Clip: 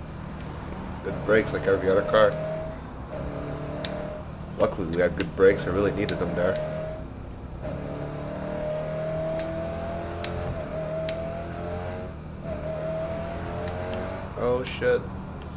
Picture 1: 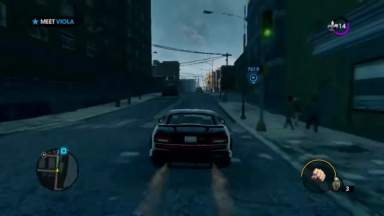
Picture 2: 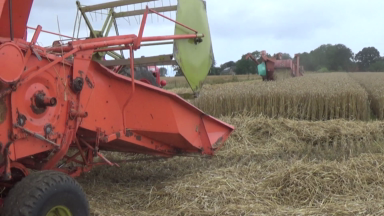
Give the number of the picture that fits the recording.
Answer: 1